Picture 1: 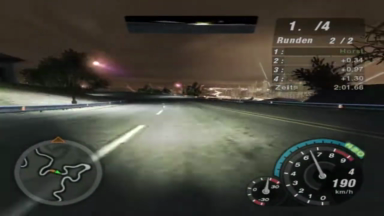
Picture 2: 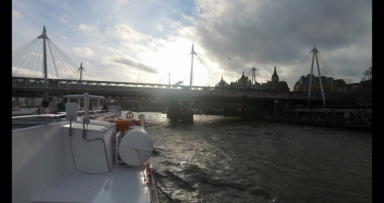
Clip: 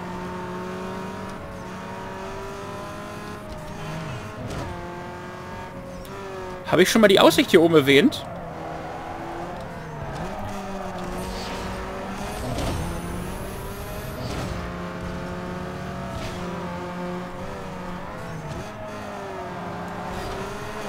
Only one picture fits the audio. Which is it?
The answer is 1